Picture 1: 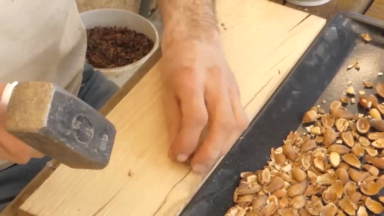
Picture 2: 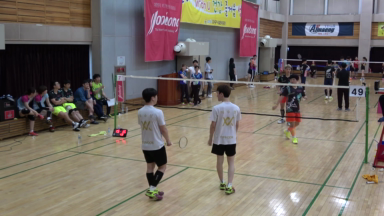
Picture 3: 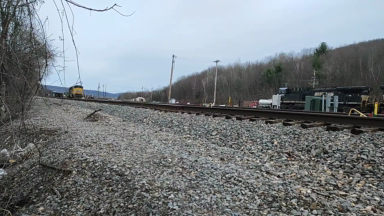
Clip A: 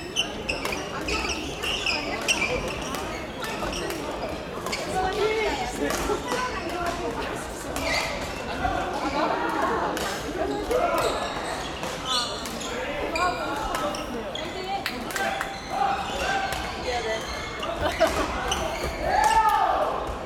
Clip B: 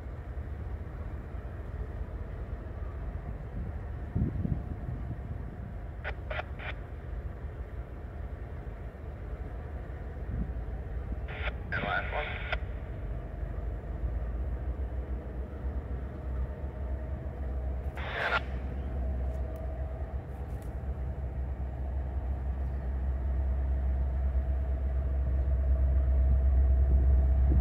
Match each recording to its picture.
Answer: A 2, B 3